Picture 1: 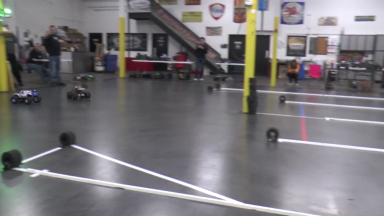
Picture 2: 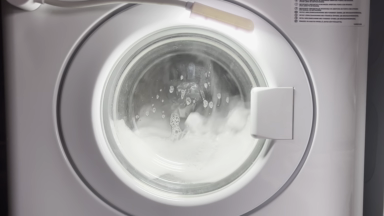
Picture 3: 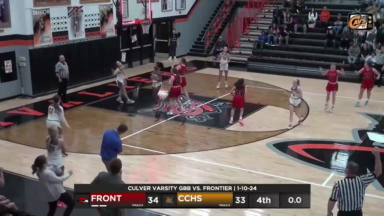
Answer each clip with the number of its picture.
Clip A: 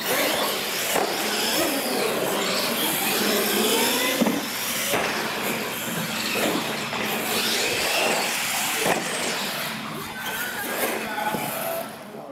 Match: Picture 1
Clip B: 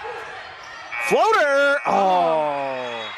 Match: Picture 3